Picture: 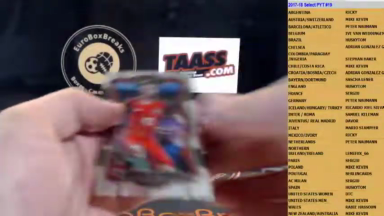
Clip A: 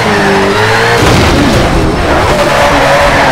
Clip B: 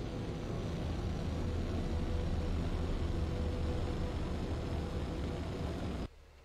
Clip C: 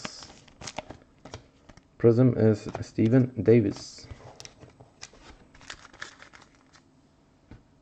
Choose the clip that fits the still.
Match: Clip C